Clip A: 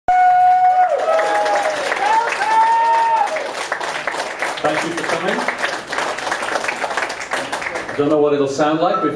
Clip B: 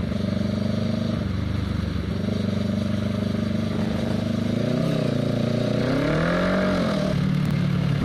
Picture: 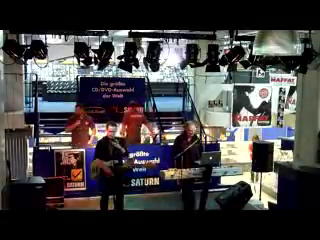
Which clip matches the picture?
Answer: A